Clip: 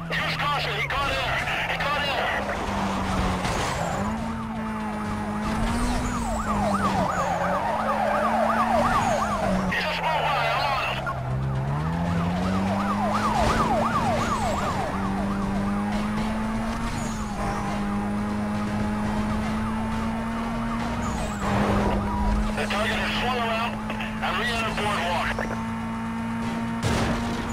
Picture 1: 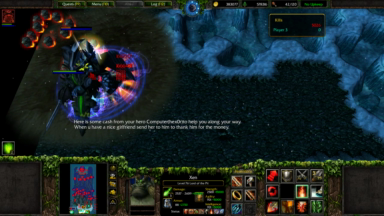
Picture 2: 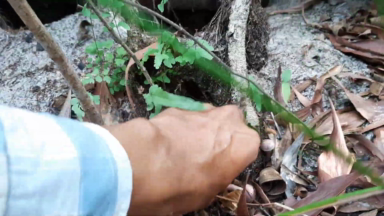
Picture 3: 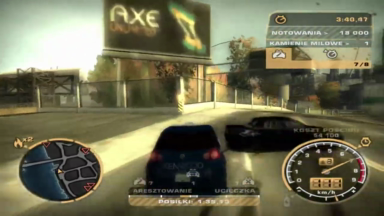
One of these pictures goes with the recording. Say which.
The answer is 3